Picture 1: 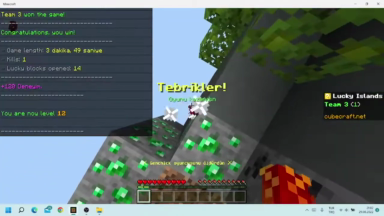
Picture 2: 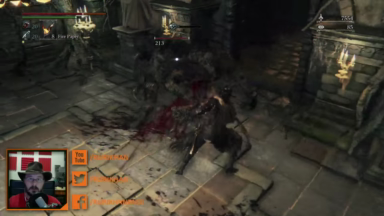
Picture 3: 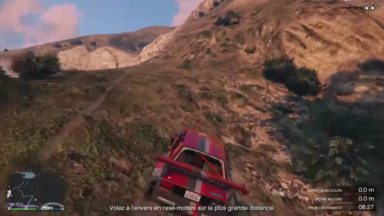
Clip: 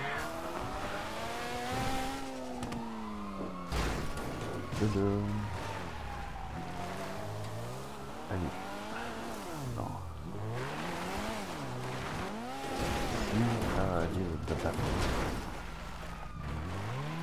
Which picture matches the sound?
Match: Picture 3